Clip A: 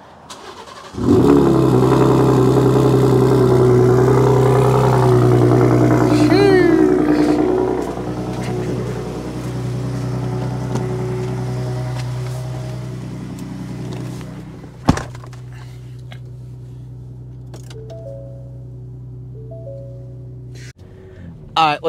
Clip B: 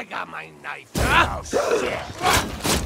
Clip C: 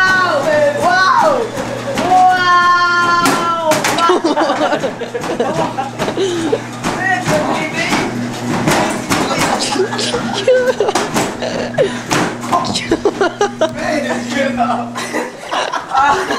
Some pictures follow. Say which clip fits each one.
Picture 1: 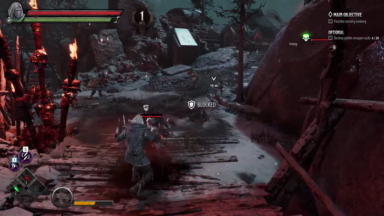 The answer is B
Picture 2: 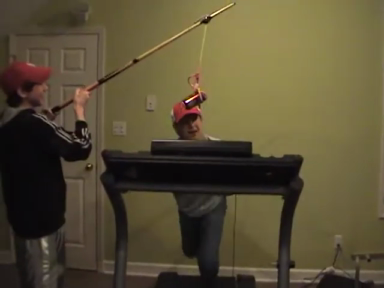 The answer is C